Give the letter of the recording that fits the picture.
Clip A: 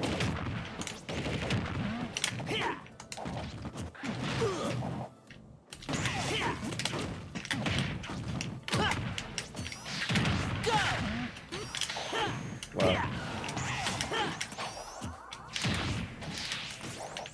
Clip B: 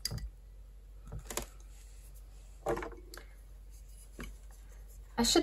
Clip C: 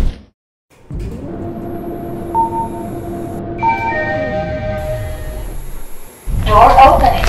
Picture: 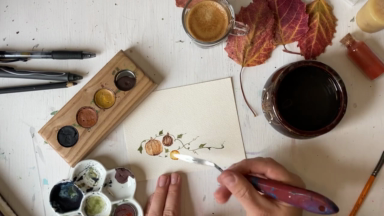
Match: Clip B